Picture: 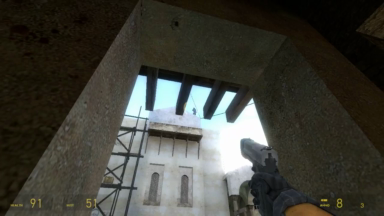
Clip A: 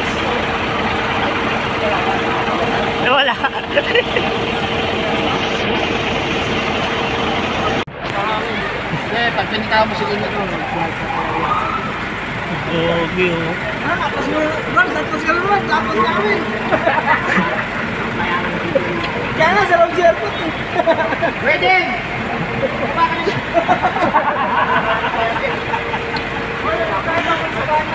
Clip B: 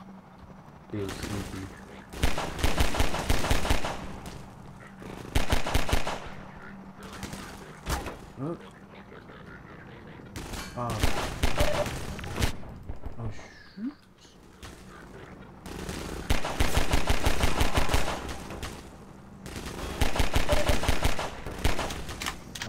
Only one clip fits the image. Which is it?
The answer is B